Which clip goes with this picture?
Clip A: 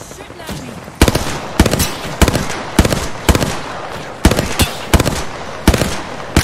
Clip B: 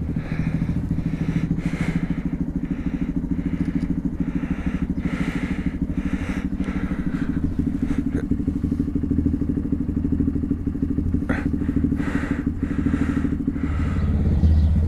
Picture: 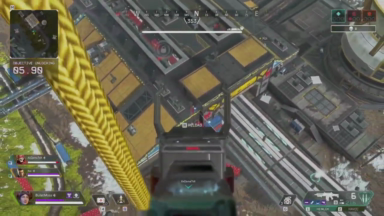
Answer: A